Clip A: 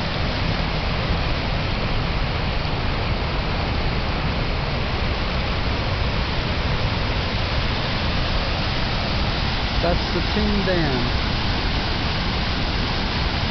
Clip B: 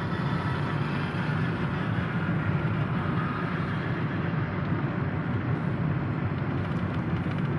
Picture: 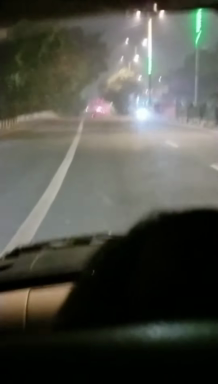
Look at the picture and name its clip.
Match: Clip B